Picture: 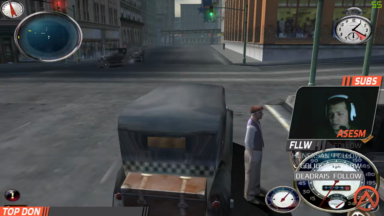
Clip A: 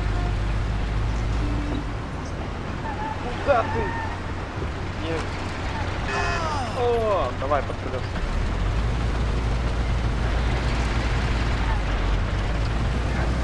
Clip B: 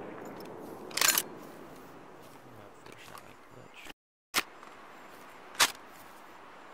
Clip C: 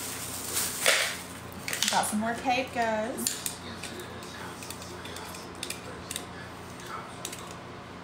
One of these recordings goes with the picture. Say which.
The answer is A